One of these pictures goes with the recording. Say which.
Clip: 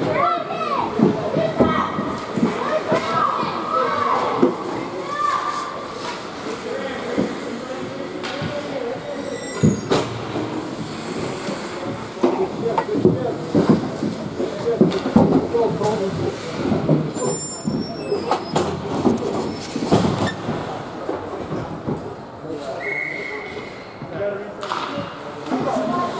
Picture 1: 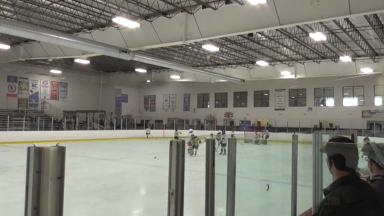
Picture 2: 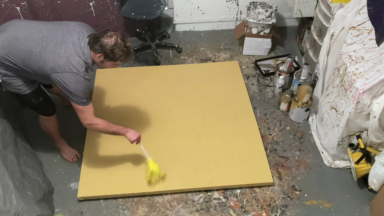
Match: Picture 1